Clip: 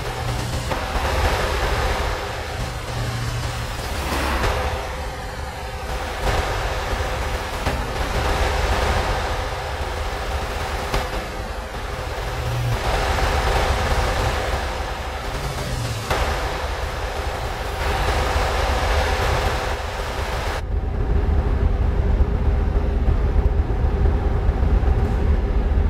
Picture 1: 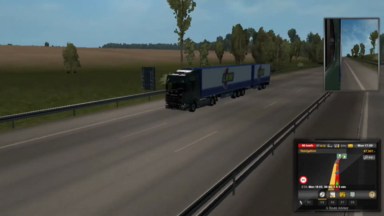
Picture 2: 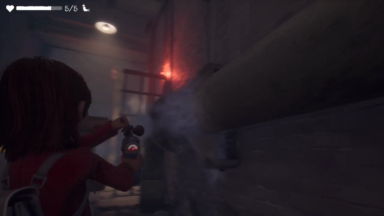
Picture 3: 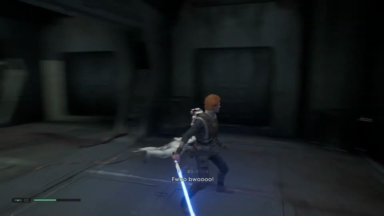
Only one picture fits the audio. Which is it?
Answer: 1